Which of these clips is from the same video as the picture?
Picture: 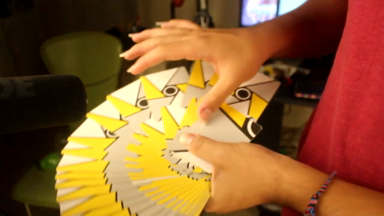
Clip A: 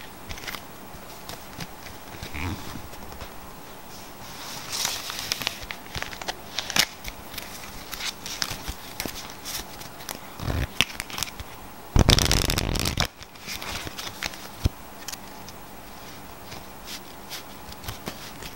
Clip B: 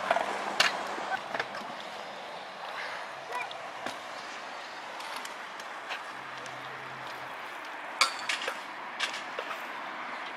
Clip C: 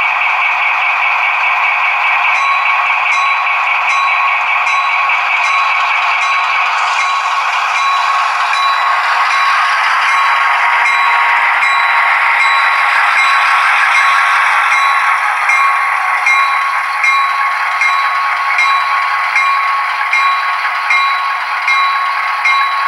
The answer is A